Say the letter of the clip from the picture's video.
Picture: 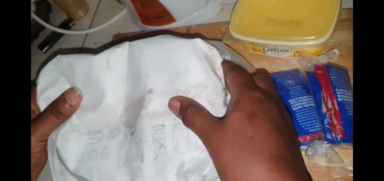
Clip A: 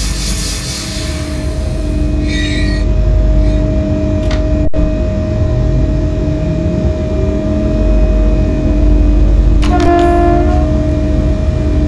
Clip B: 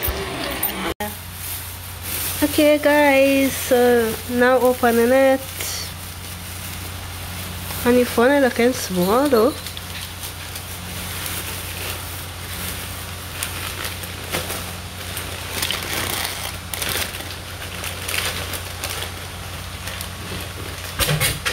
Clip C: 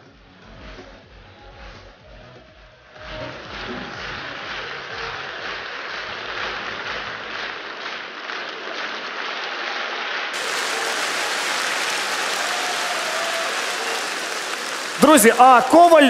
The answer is B